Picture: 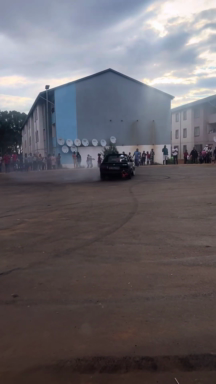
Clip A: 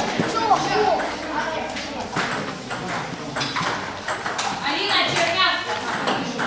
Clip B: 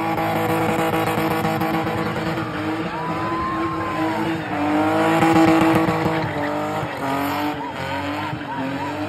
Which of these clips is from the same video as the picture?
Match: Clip B